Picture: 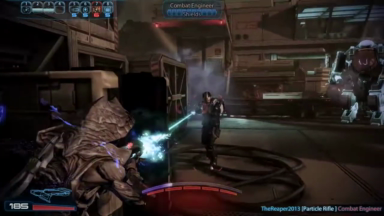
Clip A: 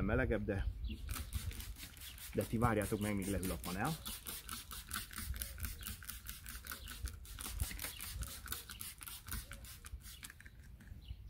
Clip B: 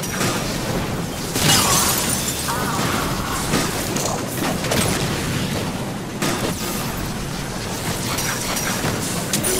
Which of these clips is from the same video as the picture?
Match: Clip B